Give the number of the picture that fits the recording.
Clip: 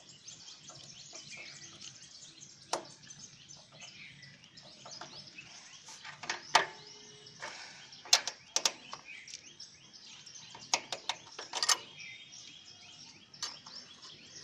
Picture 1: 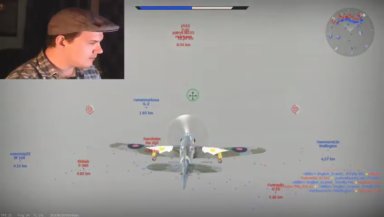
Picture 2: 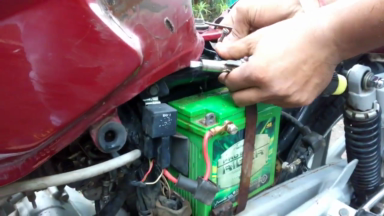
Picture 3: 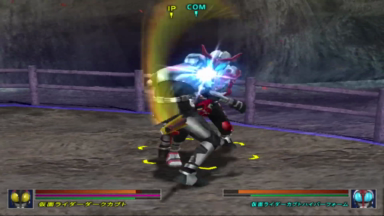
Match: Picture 2